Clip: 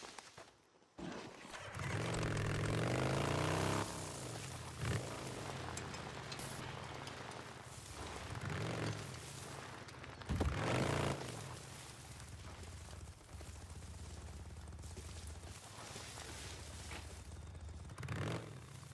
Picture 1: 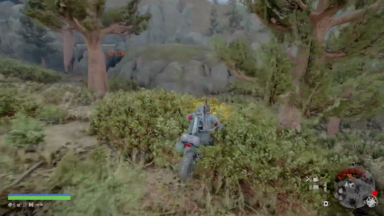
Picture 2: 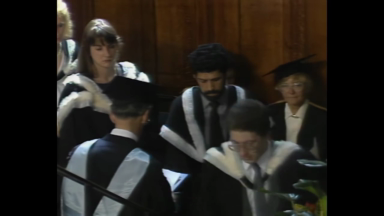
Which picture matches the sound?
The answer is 1